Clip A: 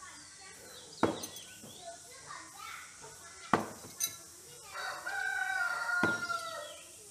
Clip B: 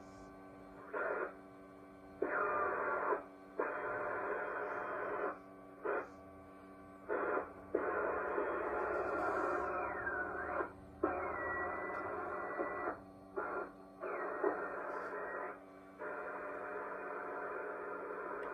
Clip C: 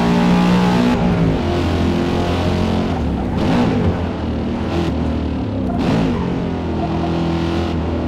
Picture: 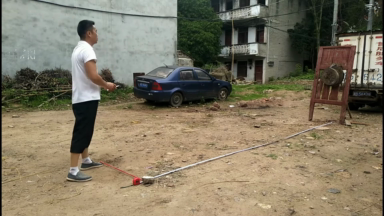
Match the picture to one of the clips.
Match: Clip A